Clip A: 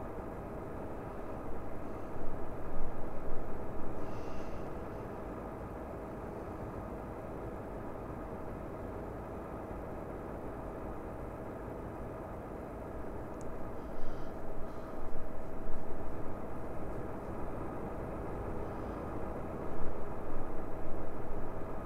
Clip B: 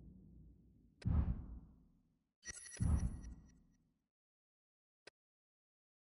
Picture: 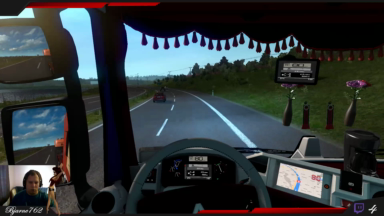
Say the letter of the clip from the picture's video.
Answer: A